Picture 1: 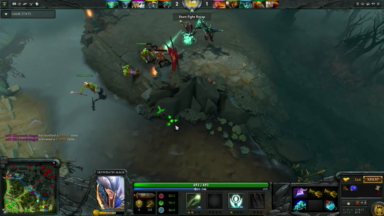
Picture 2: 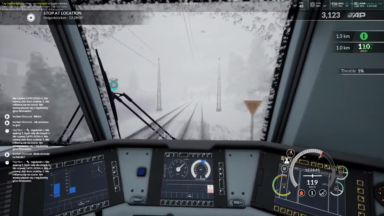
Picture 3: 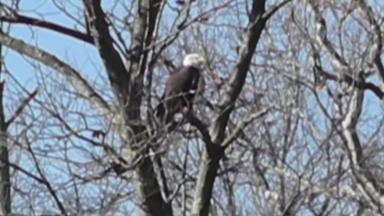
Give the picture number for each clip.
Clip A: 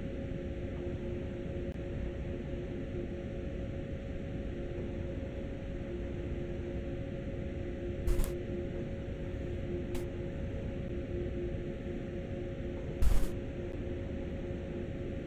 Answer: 2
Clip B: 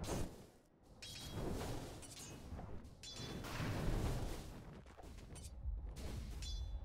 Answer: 1